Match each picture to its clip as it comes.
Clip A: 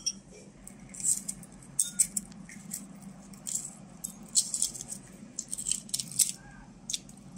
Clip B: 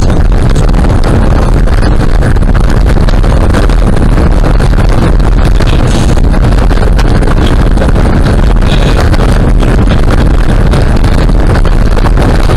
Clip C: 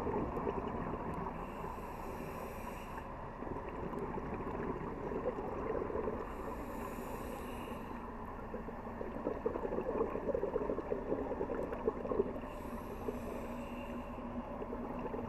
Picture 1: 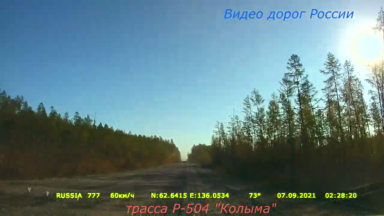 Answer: B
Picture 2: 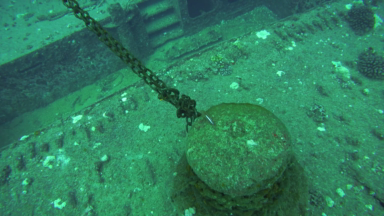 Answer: C